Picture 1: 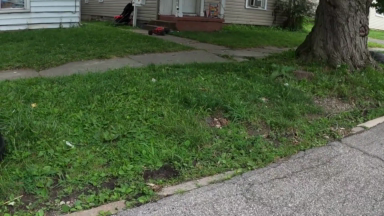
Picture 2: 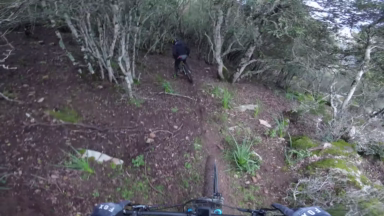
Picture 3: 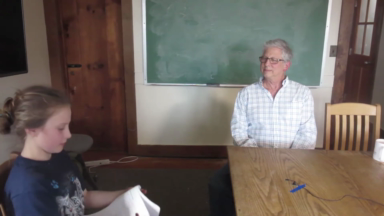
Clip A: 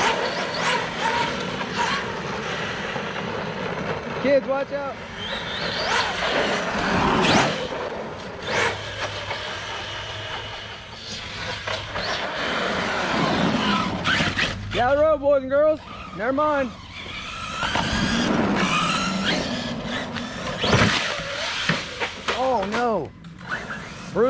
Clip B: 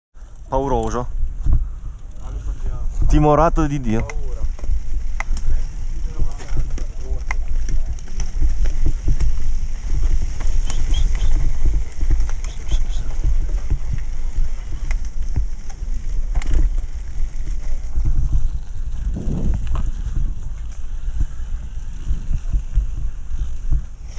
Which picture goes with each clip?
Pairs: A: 1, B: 2